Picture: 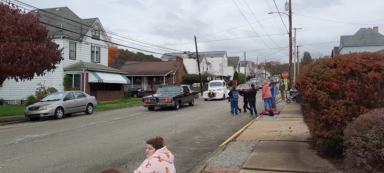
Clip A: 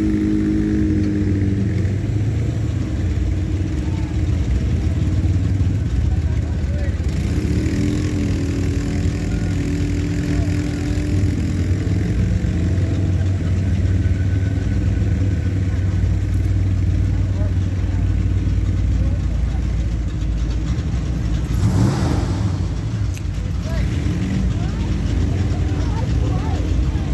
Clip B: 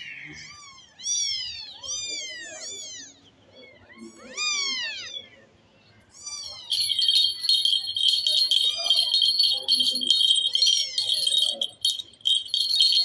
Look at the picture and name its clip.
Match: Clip A